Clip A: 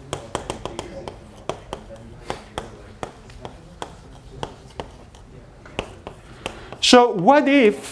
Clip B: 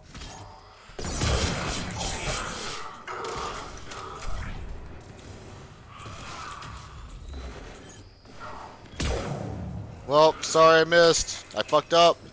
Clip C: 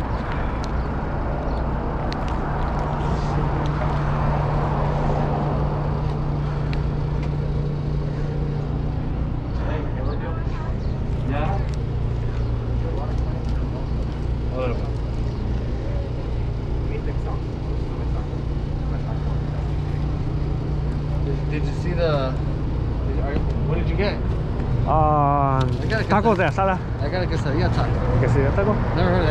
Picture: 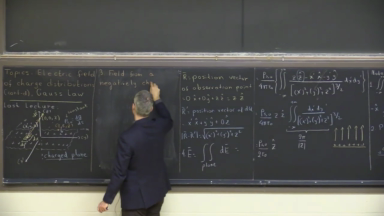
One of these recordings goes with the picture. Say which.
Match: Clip A